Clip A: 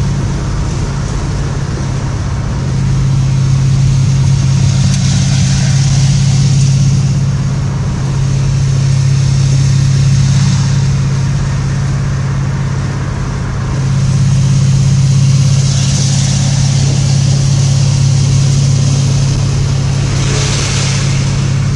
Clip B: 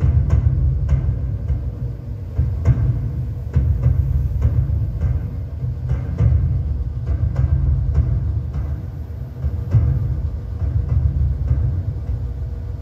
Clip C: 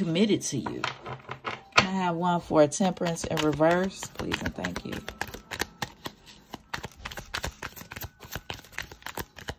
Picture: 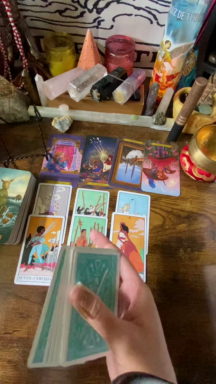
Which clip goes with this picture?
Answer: C